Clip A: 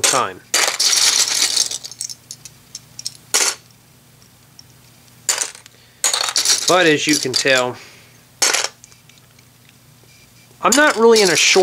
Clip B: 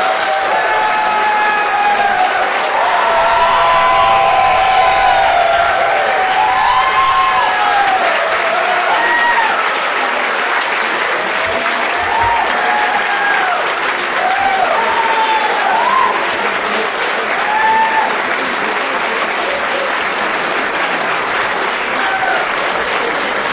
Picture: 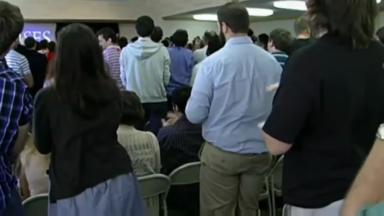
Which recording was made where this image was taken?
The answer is B